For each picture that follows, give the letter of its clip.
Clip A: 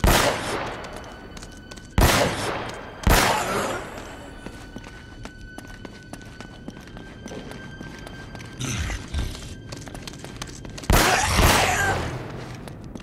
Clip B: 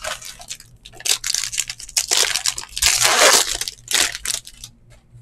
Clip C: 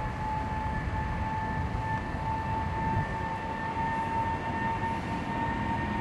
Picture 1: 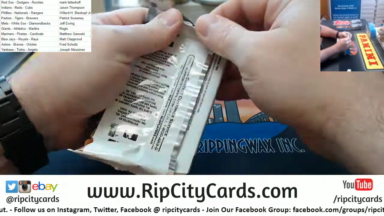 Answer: B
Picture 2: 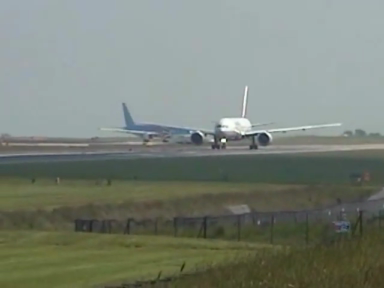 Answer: C